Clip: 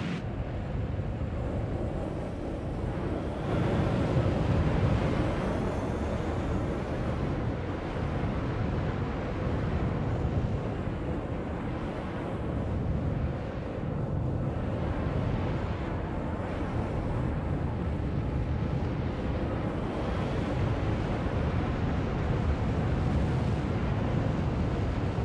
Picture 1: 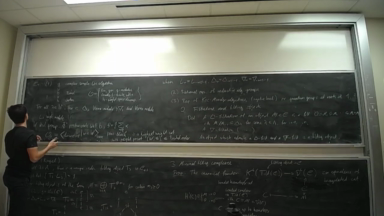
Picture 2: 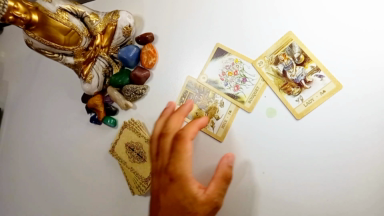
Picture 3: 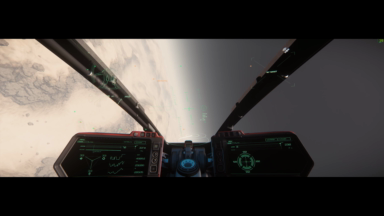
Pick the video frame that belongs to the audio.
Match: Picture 3